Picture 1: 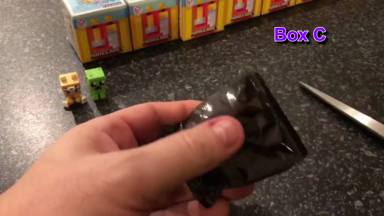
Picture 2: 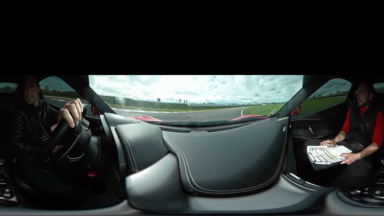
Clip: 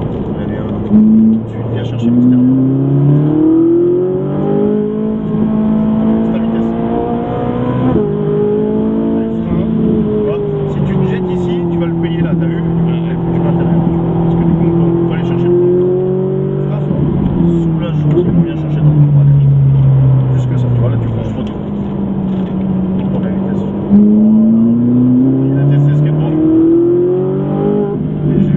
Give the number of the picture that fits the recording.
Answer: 2